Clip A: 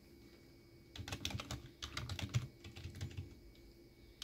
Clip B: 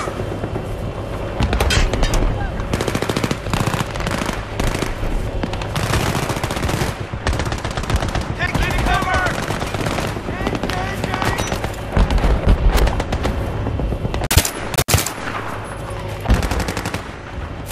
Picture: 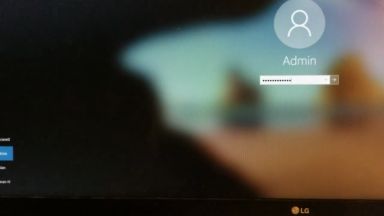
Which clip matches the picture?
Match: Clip A